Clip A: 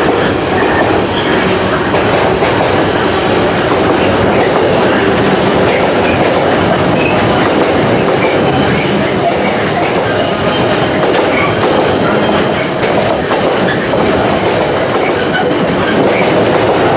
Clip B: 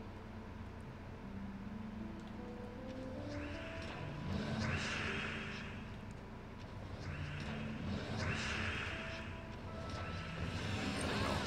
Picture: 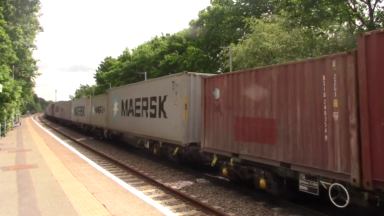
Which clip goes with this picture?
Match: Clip A